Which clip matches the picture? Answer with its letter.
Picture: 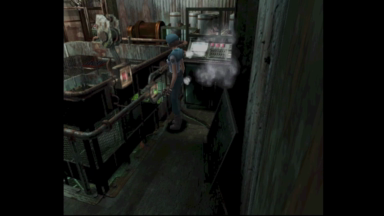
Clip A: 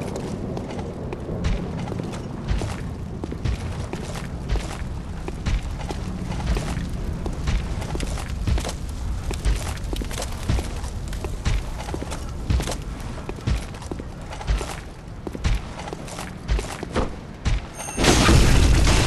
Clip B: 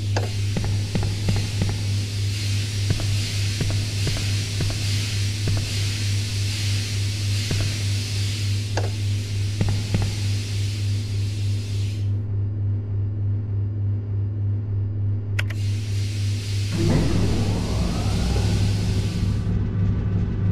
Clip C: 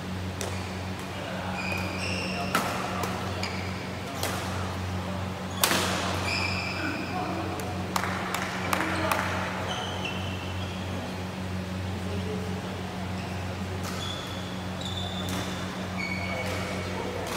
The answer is B